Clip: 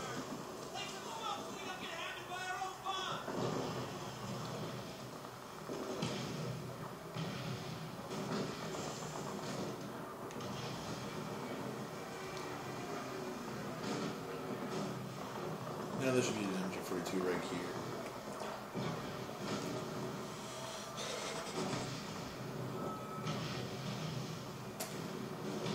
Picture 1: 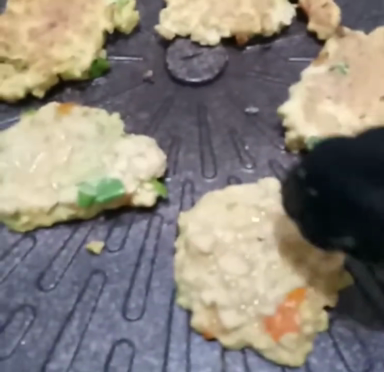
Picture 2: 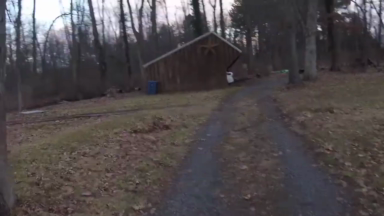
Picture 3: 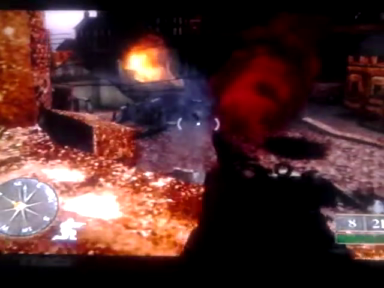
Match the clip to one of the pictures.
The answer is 3